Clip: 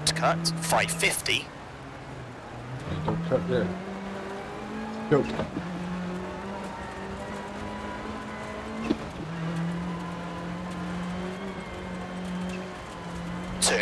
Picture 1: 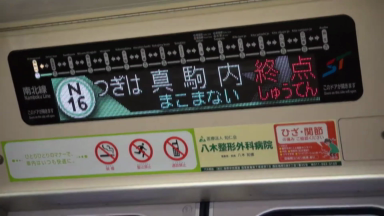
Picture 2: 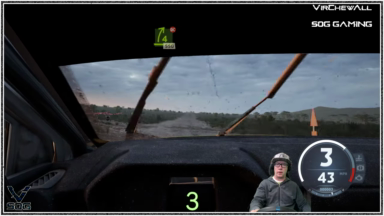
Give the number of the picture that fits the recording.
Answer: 2